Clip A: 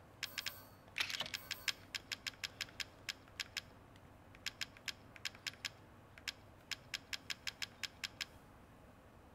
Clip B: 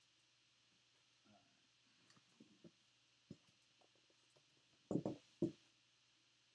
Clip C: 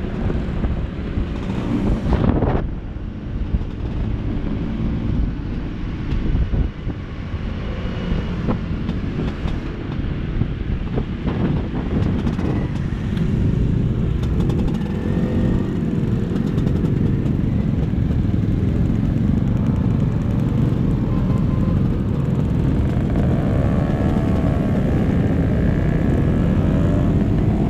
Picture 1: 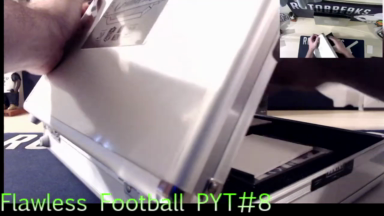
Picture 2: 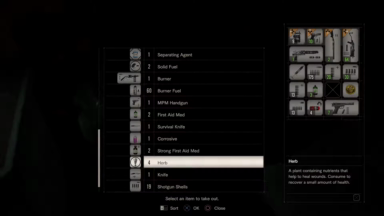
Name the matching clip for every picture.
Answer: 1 B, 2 A